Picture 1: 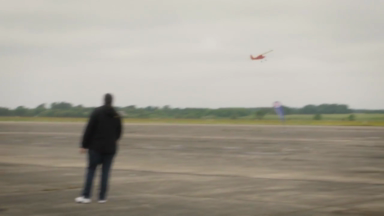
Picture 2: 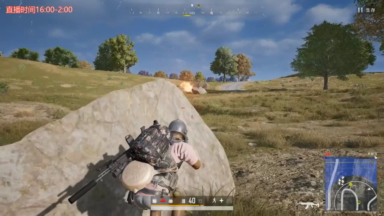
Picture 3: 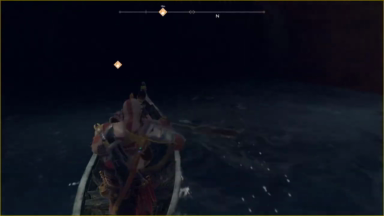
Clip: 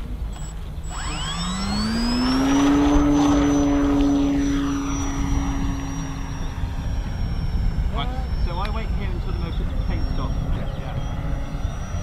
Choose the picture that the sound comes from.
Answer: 1